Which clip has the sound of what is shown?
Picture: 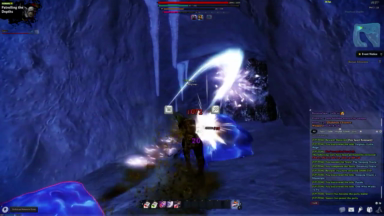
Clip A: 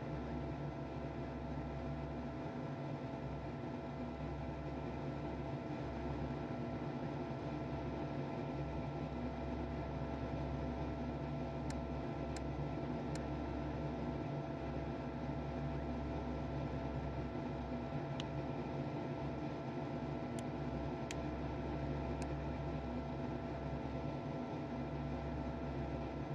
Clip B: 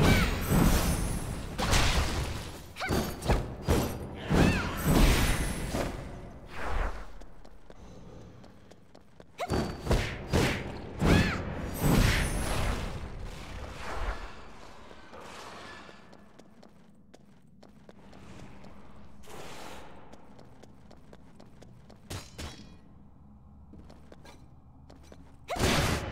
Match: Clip B